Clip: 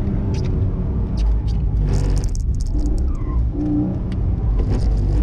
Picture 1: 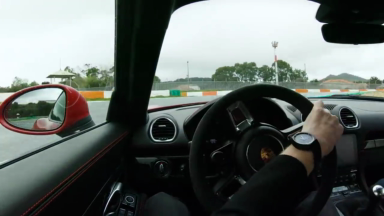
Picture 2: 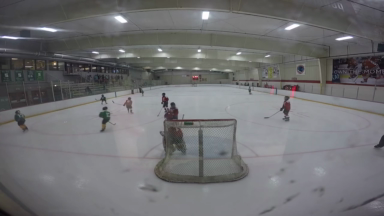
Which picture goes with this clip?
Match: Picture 1